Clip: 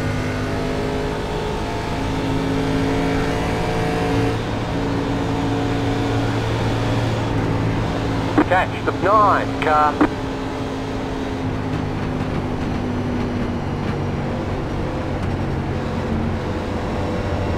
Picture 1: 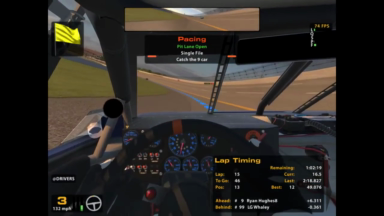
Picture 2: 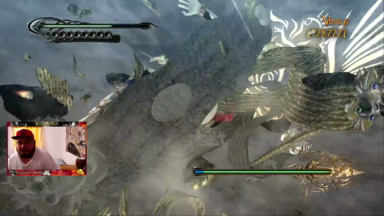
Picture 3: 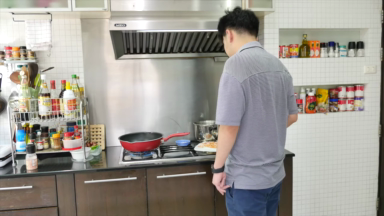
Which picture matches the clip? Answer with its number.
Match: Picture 1